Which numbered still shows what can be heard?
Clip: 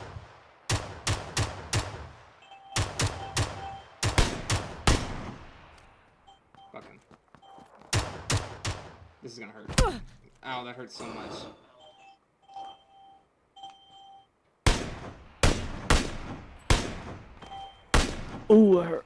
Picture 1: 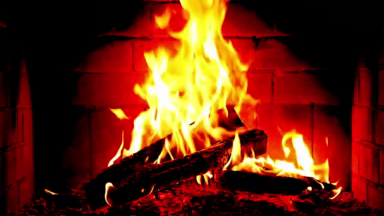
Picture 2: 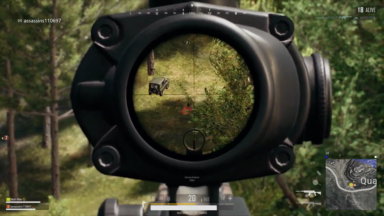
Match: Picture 2